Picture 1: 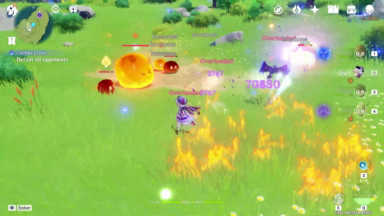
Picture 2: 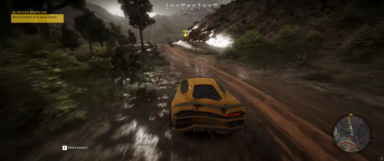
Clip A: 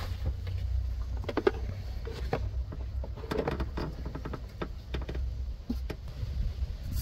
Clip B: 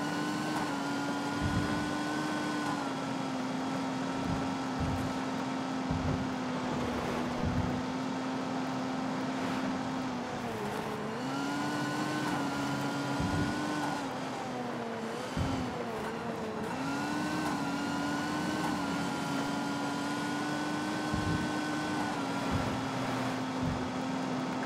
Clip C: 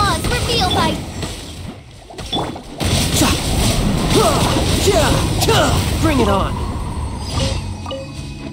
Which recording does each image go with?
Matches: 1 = C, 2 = B